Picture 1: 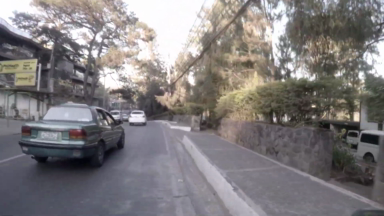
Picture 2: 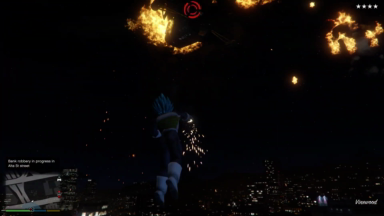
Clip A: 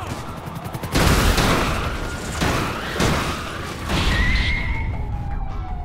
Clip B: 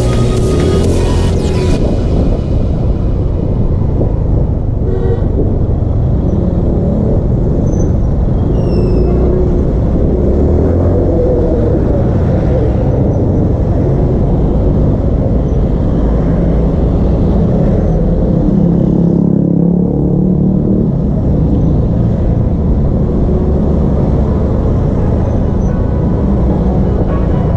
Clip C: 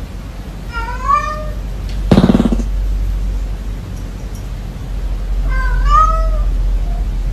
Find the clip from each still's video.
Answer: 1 B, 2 A